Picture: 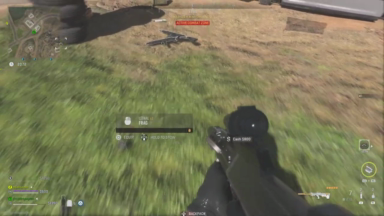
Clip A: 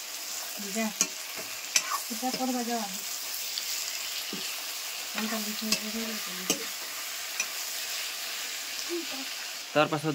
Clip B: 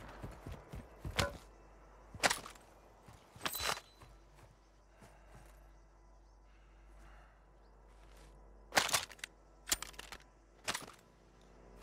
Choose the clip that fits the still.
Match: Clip B